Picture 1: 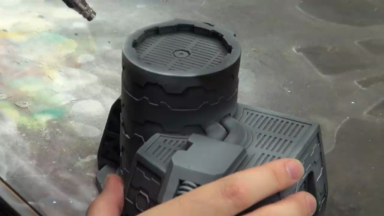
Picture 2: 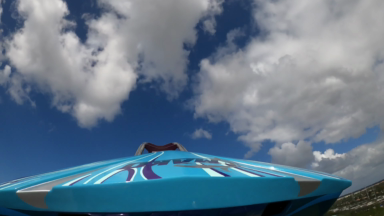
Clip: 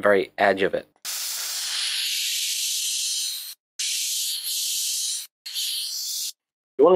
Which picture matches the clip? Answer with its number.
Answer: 1